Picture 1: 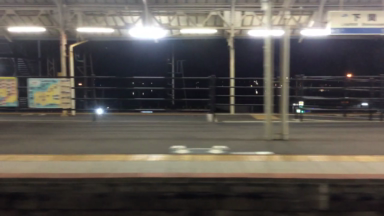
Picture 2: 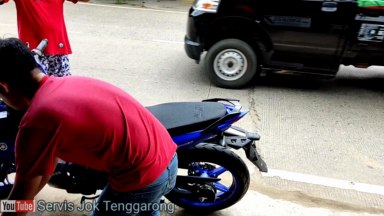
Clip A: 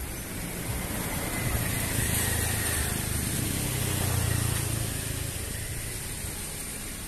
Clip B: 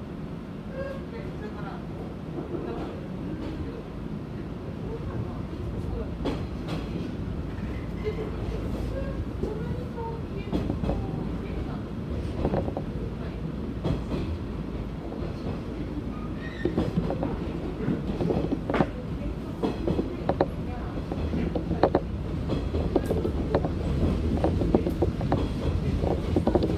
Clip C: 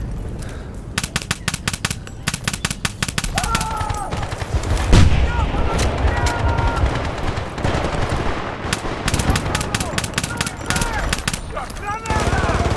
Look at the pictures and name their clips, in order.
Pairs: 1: B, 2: A